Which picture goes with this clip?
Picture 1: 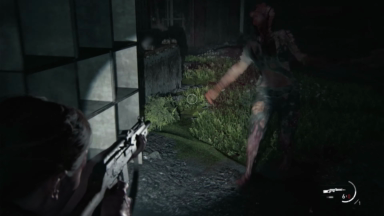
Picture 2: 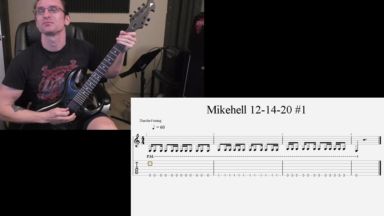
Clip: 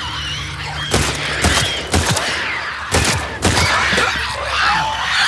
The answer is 1